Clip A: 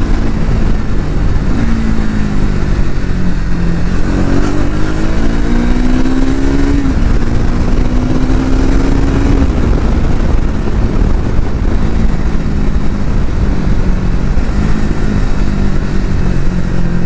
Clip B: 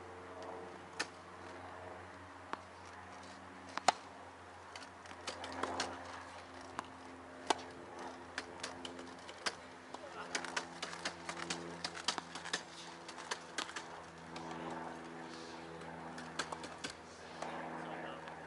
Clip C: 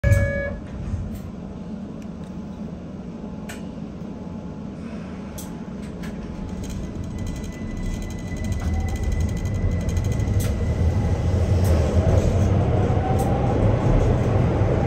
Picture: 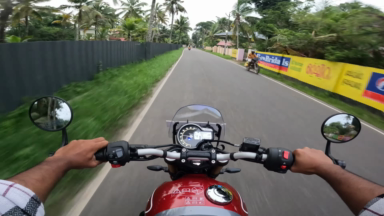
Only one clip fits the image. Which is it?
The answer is A